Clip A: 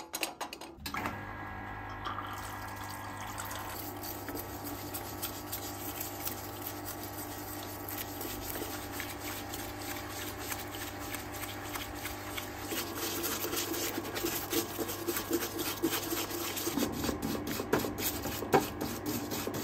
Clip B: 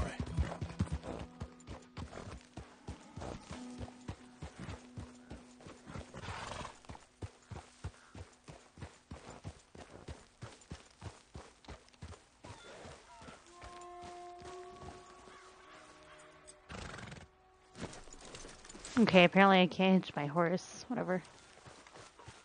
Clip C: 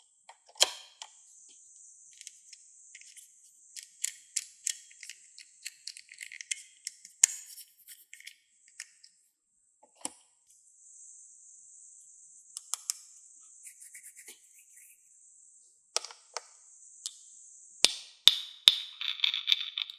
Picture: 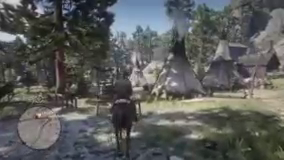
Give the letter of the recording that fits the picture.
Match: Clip B